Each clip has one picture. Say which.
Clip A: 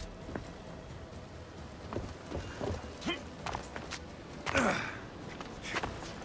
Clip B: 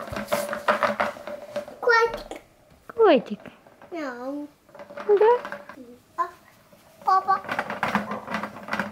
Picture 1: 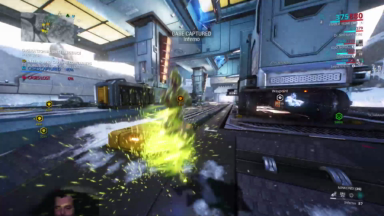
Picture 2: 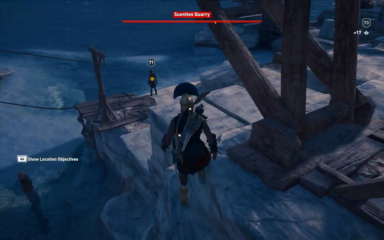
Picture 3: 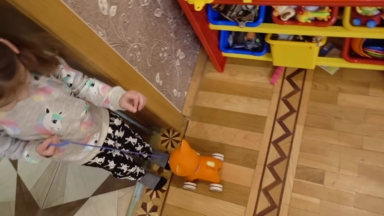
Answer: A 2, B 3